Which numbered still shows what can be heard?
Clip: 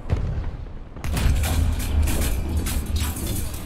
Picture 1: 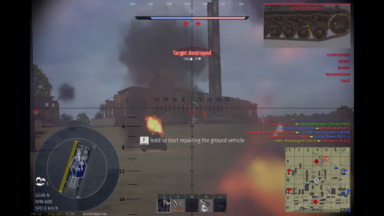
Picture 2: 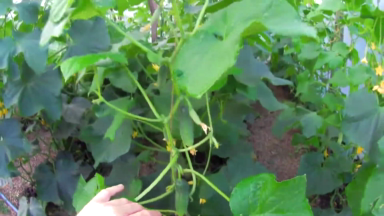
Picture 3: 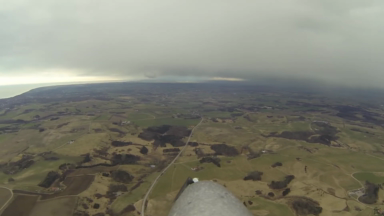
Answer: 1